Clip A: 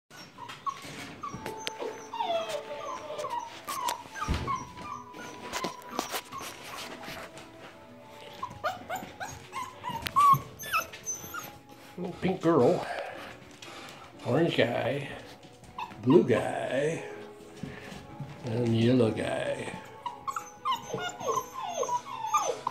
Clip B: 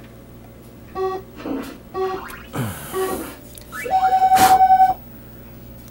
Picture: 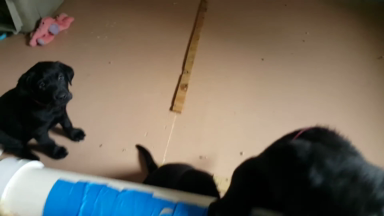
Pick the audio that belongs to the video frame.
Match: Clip A